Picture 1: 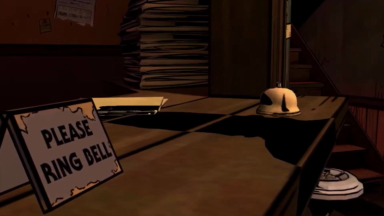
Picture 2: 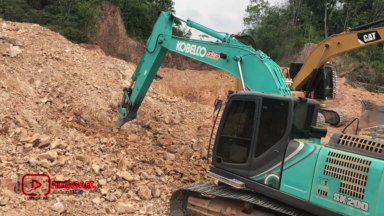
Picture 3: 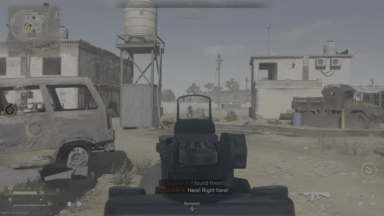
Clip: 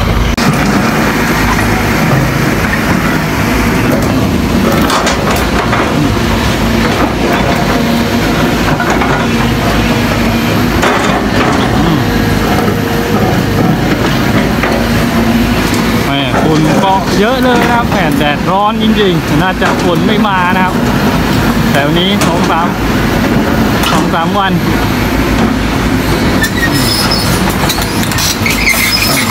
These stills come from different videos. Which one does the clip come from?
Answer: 2